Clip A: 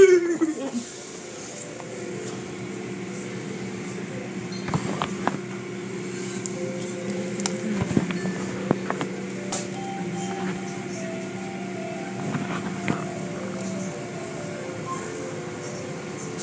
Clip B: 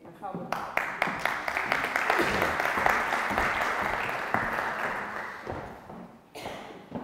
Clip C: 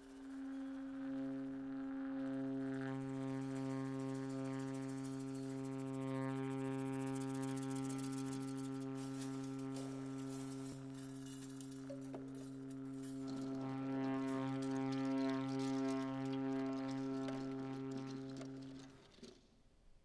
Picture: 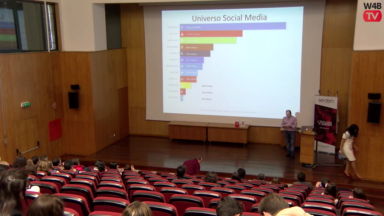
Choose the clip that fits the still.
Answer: B